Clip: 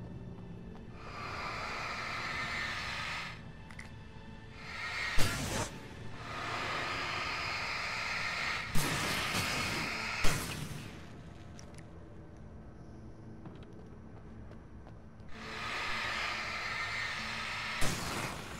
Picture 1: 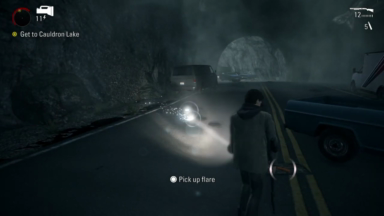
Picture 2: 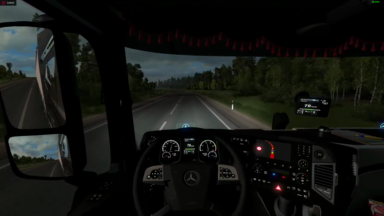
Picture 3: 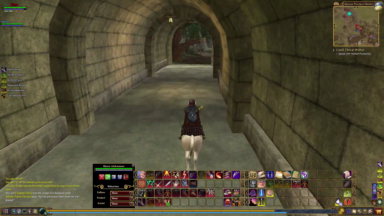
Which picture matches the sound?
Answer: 1